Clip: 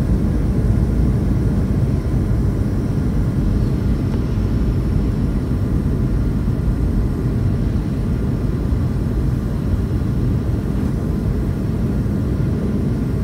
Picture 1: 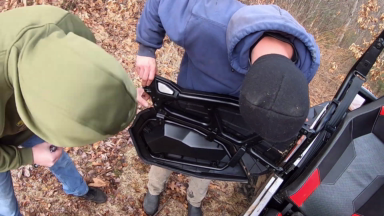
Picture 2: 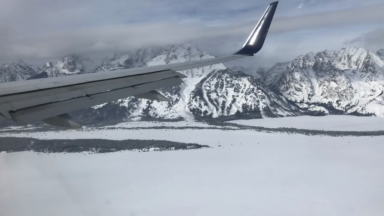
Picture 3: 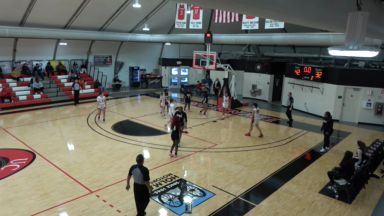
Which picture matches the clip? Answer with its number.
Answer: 2